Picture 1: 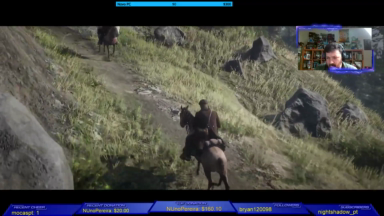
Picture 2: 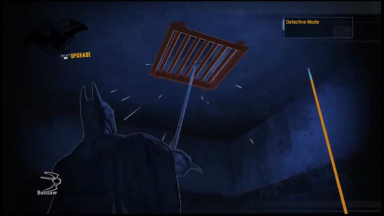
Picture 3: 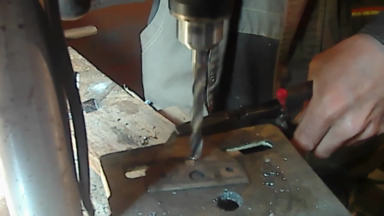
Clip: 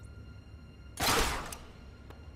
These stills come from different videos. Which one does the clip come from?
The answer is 2